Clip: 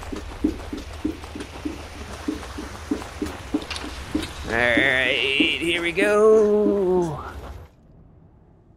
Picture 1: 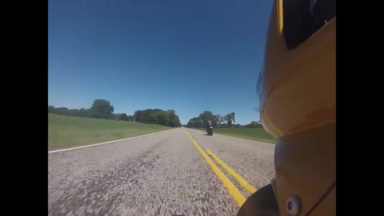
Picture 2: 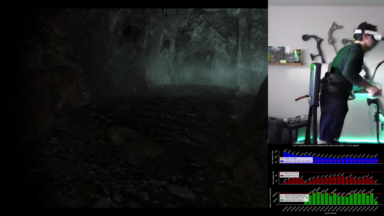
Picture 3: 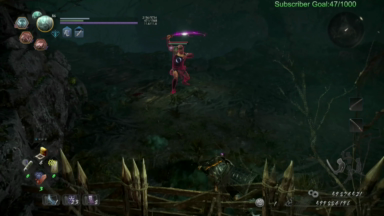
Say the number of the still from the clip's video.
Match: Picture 2